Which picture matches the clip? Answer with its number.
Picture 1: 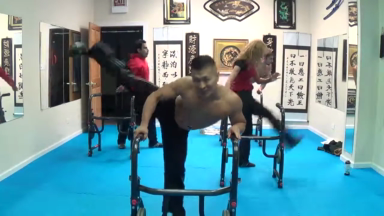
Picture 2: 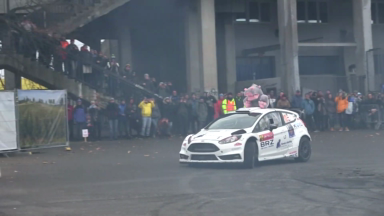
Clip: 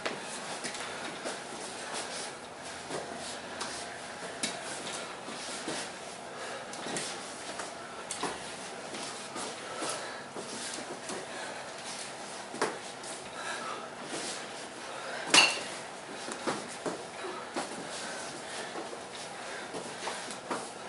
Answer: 1